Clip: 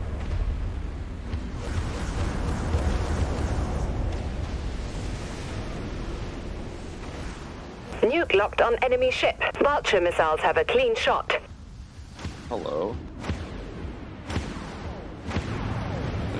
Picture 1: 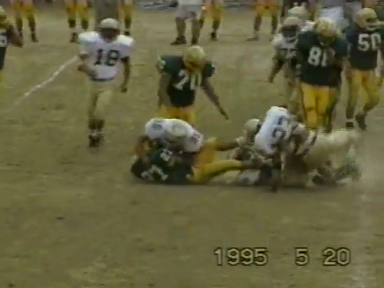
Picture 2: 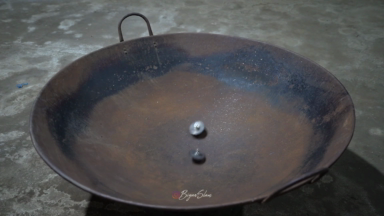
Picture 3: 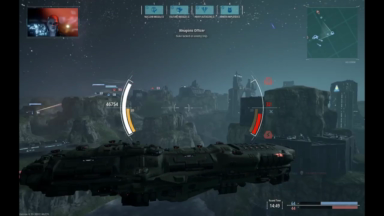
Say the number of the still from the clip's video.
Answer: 3